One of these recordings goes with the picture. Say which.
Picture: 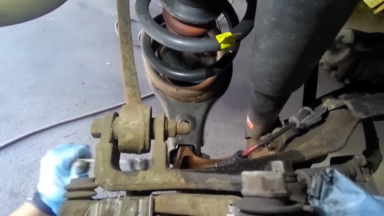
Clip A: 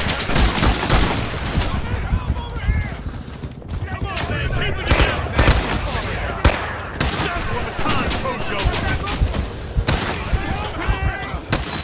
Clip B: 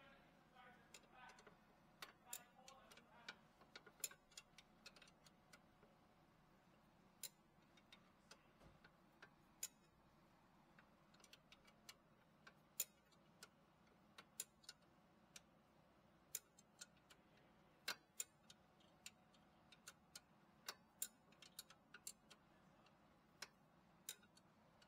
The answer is B